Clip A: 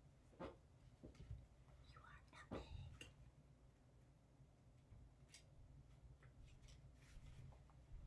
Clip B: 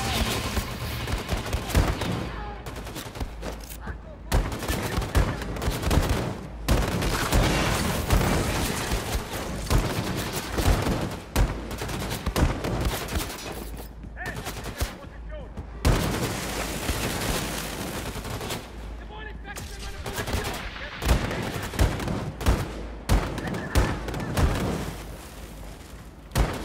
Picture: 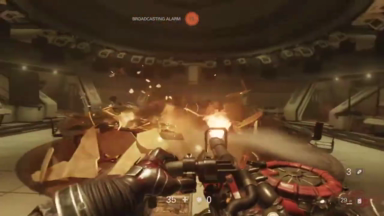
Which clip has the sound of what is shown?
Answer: B